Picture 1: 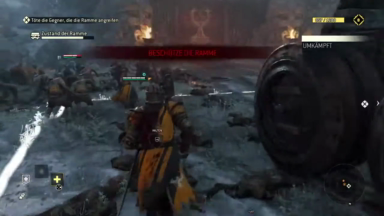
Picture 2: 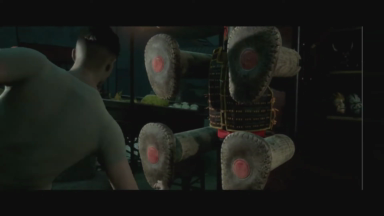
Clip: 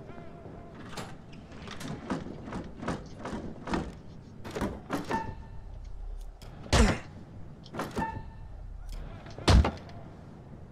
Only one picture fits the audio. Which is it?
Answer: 2